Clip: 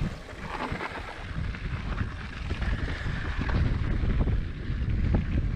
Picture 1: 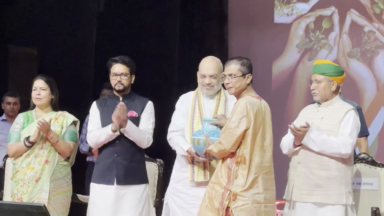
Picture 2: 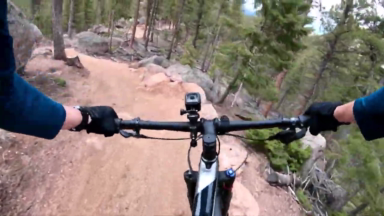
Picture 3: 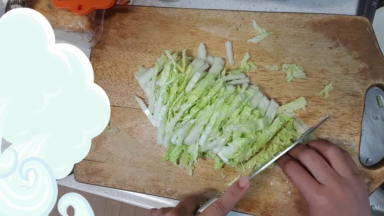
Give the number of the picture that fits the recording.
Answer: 2